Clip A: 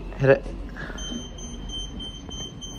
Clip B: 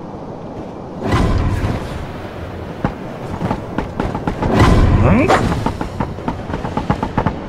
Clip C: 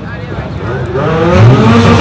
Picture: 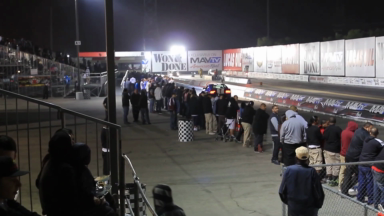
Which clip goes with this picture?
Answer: C